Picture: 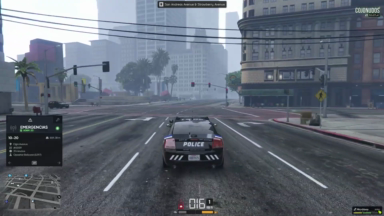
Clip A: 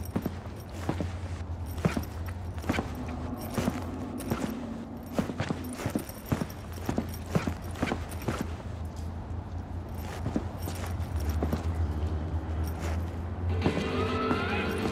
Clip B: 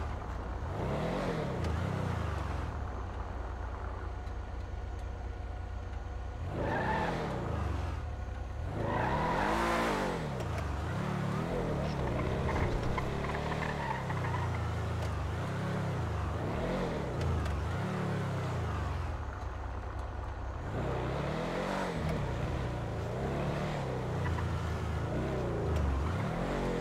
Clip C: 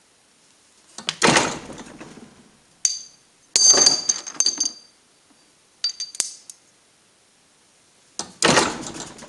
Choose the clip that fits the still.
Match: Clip B